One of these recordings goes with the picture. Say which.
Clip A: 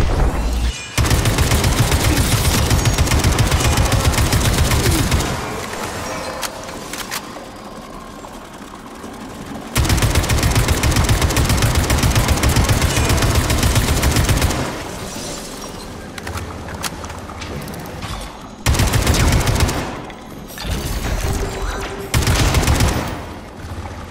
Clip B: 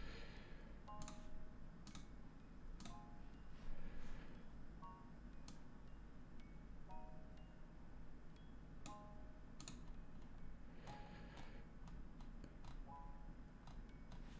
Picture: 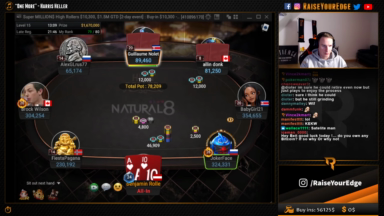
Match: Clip B